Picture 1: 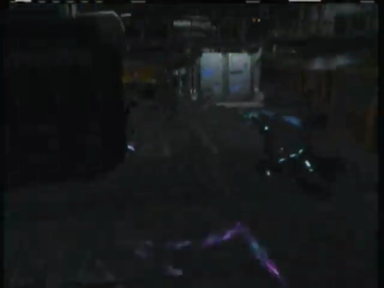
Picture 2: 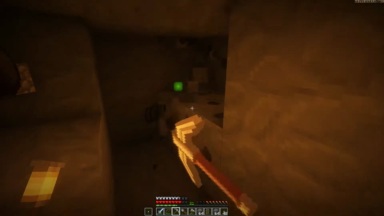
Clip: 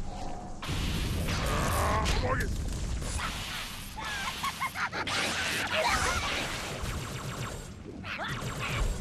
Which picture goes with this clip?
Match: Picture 1